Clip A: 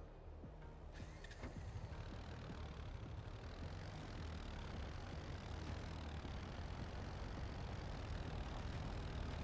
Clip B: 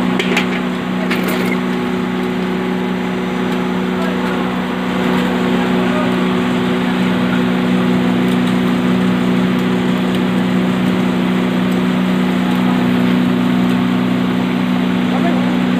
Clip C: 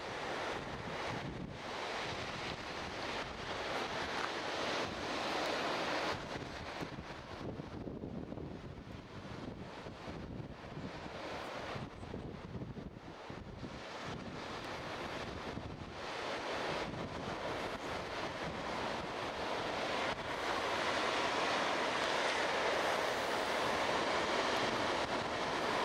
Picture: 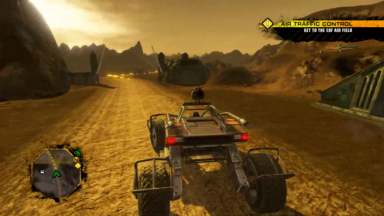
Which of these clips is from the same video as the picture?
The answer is A